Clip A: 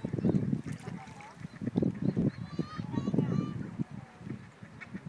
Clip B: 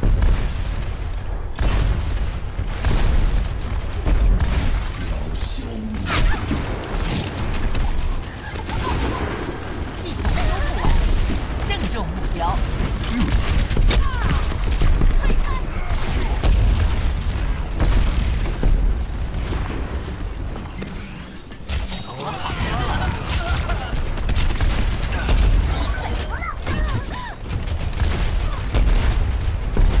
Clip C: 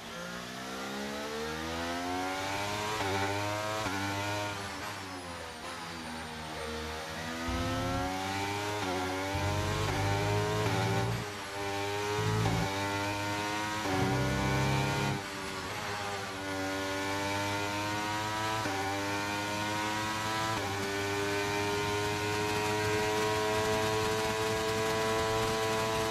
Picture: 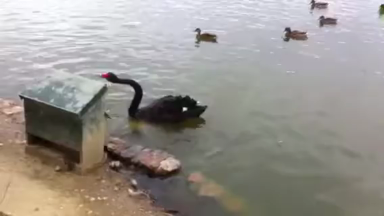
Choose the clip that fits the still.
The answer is A